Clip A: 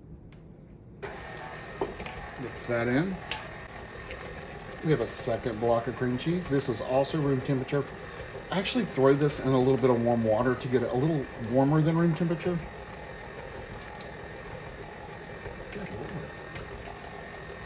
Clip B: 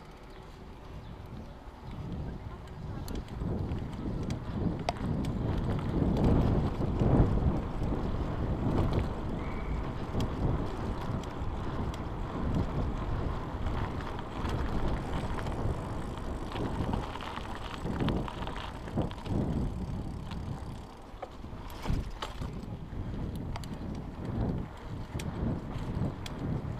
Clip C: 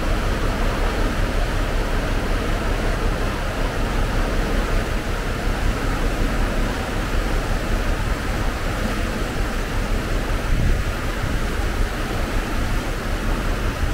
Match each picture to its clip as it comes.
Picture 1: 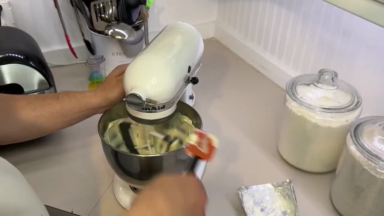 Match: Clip A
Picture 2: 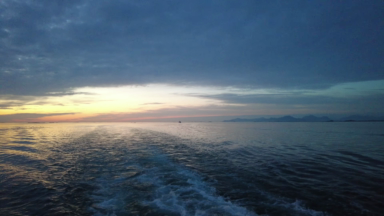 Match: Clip C